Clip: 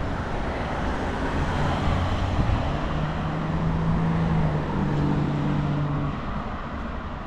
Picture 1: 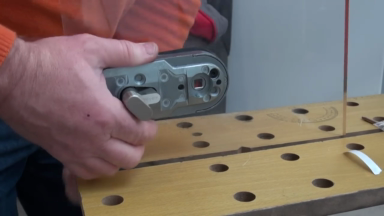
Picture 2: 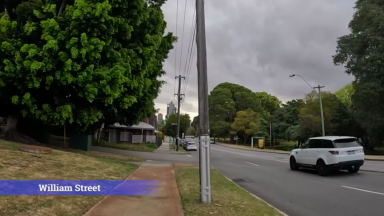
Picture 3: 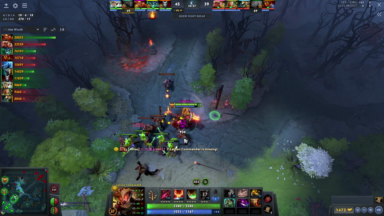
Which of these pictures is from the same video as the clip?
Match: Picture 2